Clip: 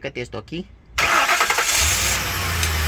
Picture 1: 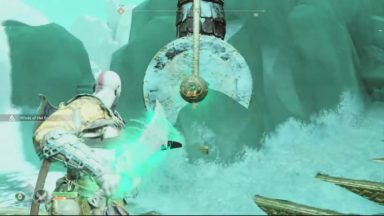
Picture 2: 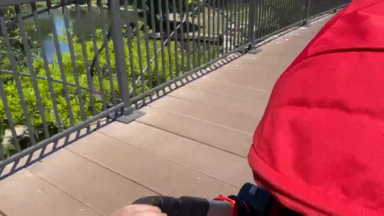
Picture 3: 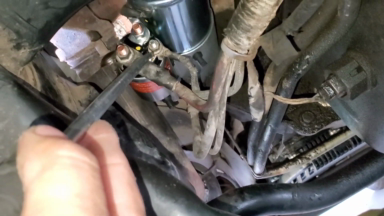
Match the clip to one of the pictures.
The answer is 3